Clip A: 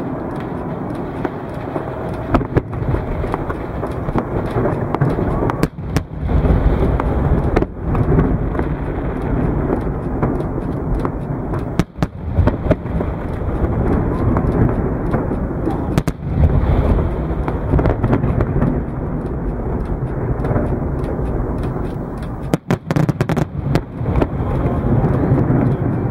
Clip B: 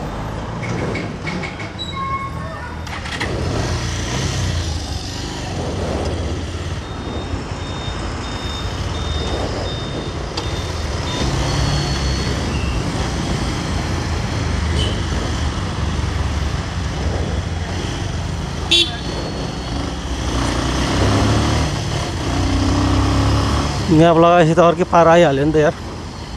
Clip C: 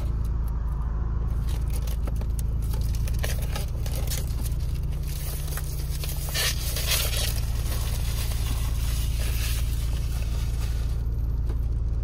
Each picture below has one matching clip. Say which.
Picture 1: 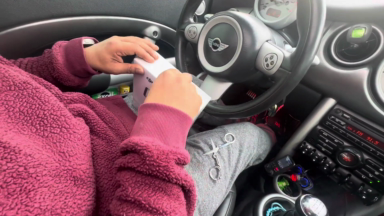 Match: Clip C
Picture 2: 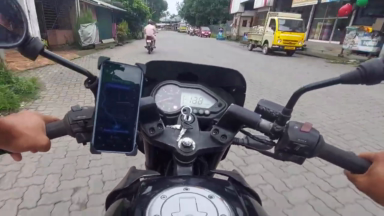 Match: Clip B